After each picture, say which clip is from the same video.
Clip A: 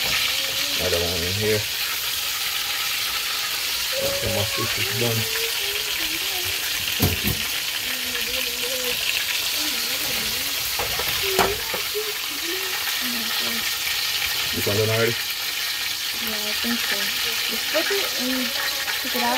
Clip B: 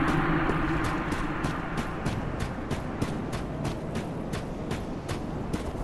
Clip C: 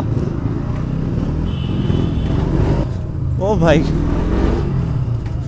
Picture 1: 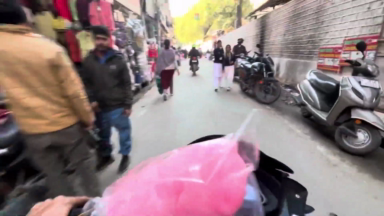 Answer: C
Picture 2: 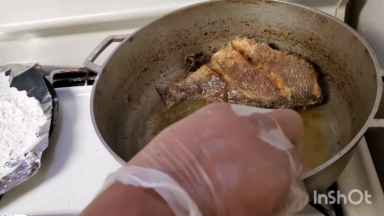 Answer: A